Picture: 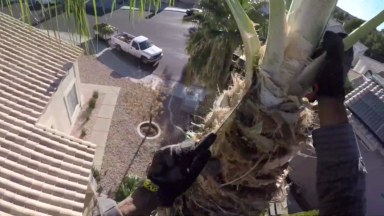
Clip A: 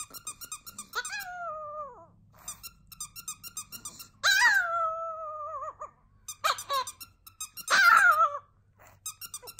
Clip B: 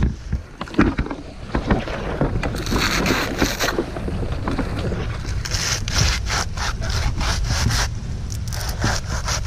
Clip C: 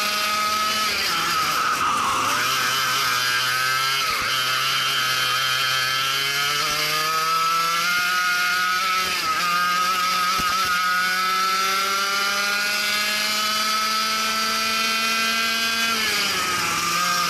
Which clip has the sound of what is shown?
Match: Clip B